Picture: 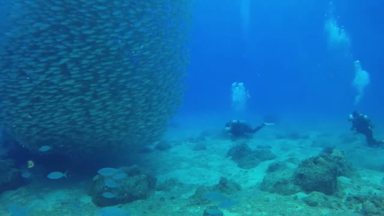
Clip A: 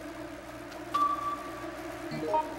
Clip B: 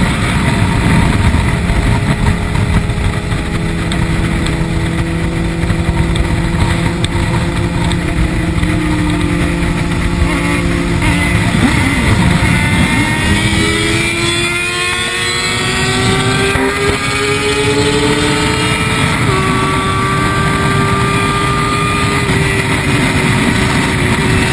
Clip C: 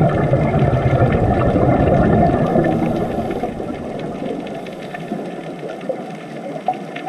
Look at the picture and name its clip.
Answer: C